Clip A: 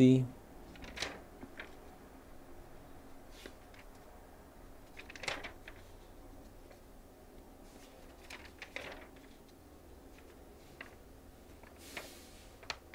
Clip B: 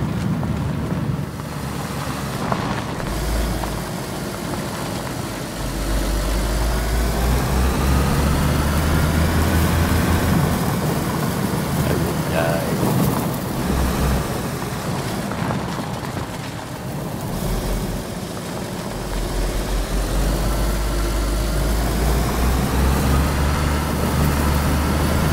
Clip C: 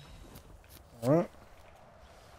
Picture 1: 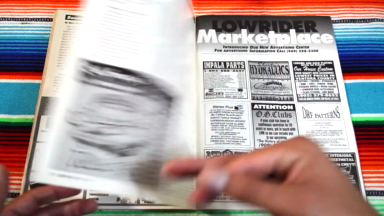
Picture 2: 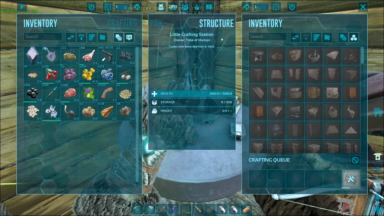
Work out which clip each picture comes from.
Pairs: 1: A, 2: C